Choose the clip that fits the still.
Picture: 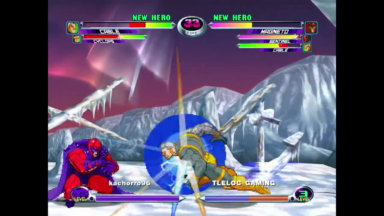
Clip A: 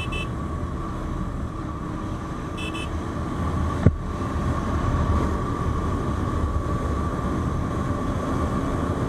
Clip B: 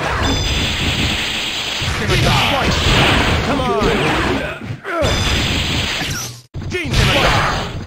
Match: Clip B